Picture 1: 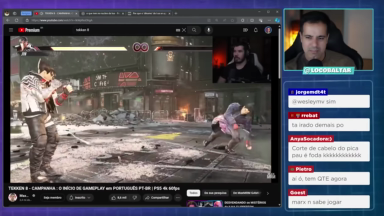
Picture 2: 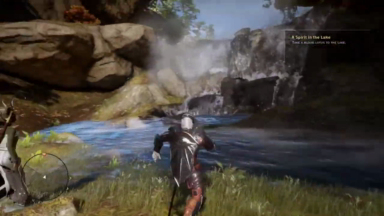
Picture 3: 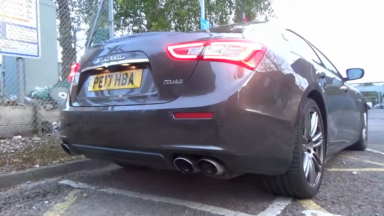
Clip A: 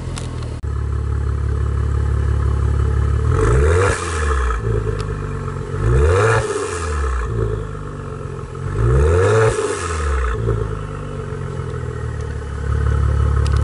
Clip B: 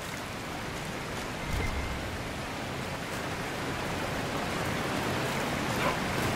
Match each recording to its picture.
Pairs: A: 3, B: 2